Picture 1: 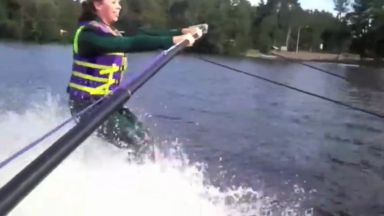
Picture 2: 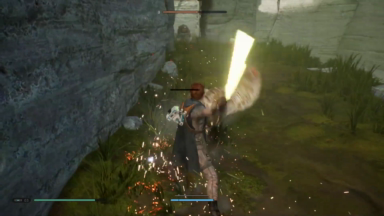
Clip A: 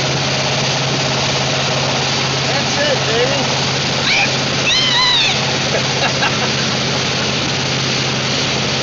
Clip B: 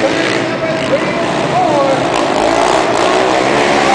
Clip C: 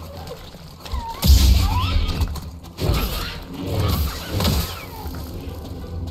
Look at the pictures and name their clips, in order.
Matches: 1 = A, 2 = C